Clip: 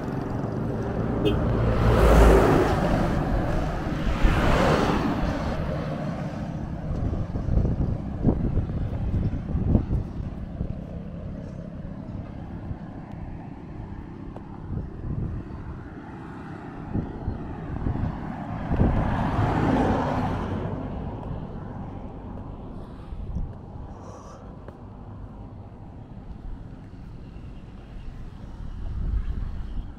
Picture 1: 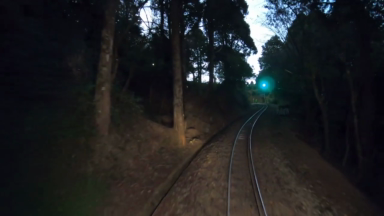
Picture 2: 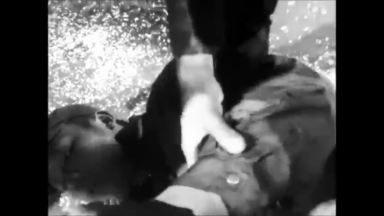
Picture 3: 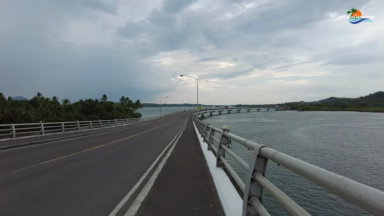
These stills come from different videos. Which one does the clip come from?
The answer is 3